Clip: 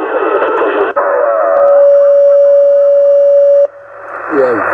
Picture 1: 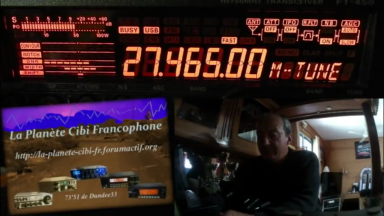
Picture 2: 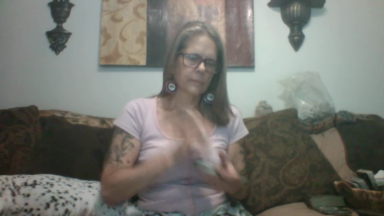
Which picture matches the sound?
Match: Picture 1